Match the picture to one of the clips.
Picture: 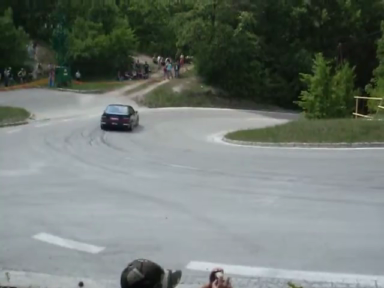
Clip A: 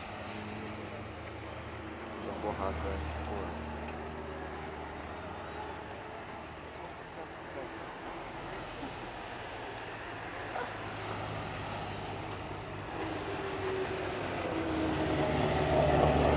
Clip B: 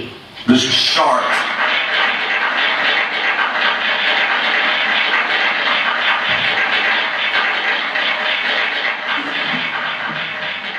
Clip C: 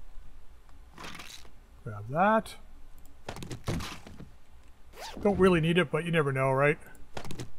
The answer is A